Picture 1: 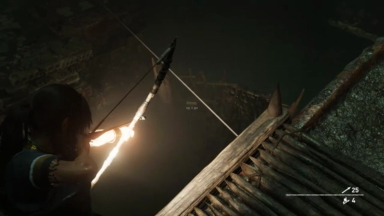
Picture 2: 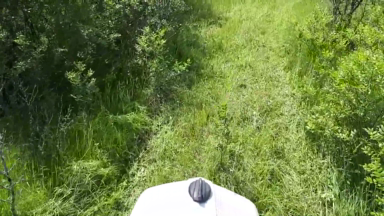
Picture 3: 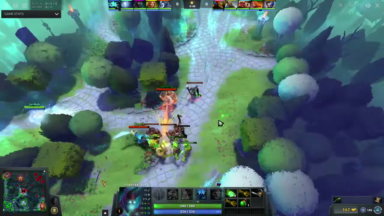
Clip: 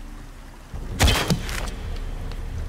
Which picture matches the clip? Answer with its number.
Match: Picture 1